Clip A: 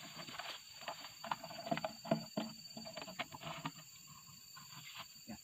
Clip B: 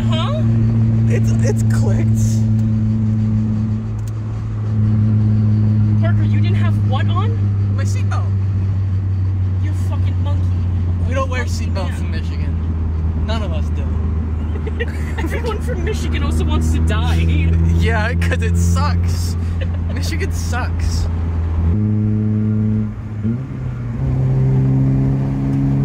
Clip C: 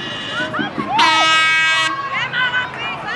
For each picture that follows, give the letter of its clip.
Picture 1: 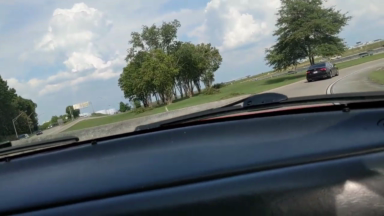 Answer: B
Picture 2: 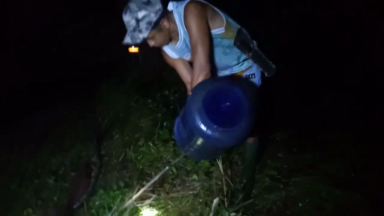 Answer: A